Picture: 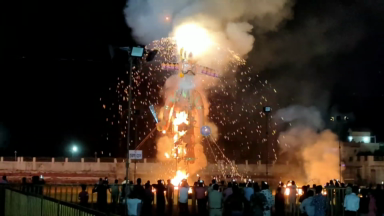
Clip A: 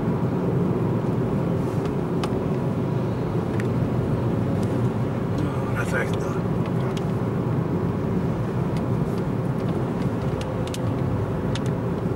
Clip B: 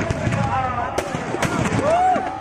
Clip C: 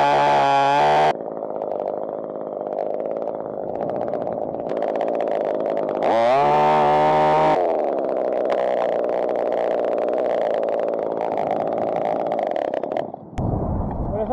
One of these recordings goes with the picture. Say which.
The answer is B